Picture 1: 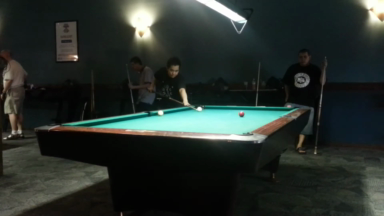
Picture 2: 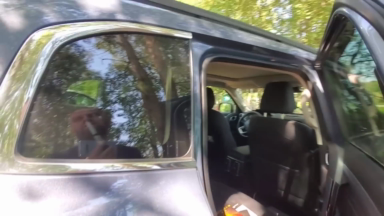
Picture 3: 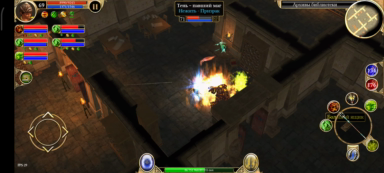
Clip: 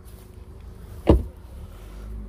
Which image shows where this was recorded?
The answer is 2